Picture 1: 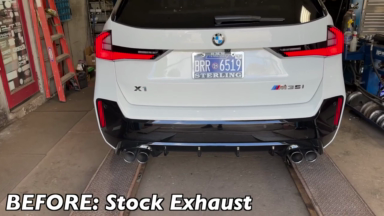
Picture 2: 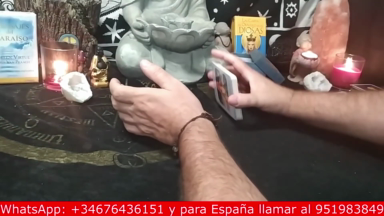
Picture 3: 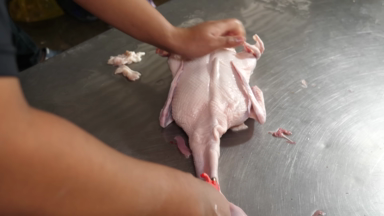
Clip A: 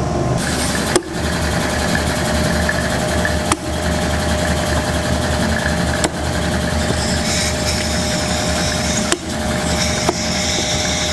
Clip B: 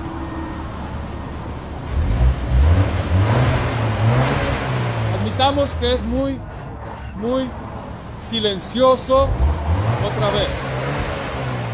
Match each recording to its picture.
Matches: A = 3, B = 1